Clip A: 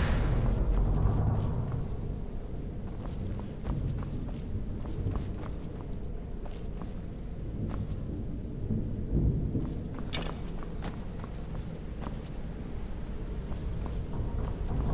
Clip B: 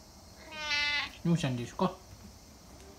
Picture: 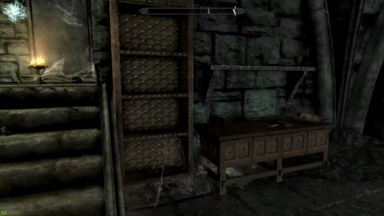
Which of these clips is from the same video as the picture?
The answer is A